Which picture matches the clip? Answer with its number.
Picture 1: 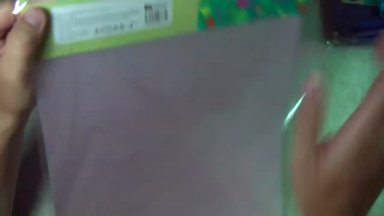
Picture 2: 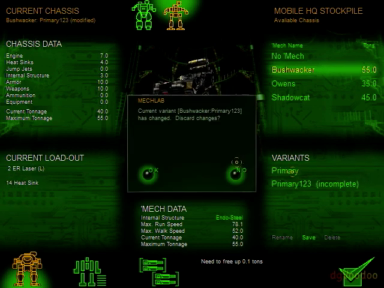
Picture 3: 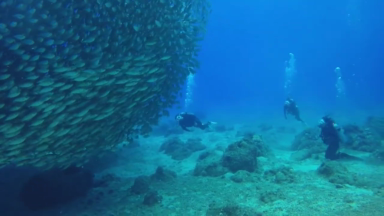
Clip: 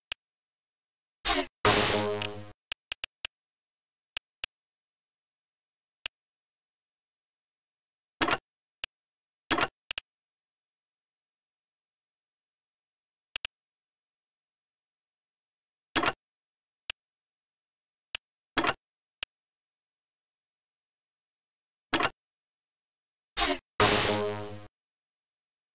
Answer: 2